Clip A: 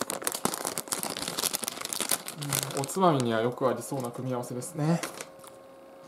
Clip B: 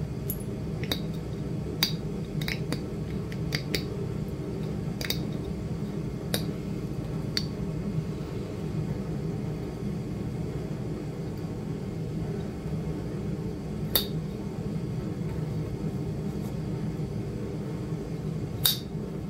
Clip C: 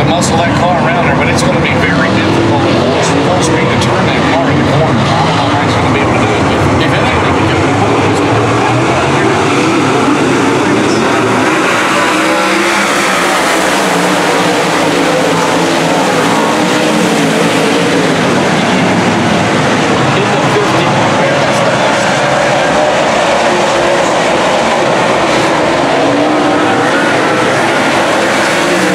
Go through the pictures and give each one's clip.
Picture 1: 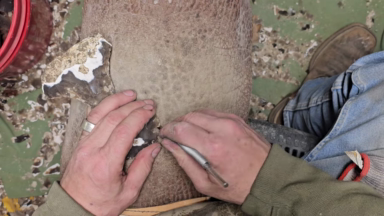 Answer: B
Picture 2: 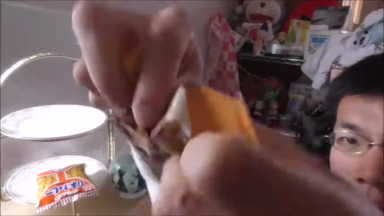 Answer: A